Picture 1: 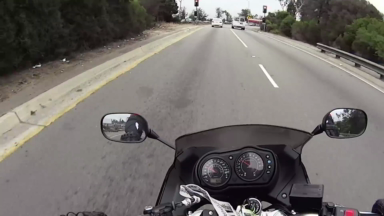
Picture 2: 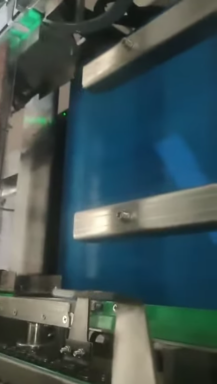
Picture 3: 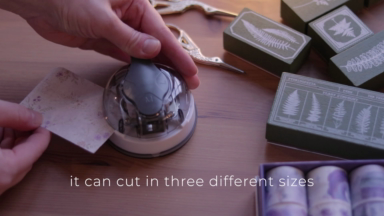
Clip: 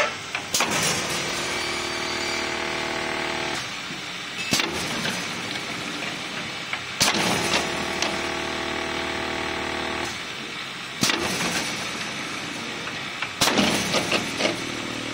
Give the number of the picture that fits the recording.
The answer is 2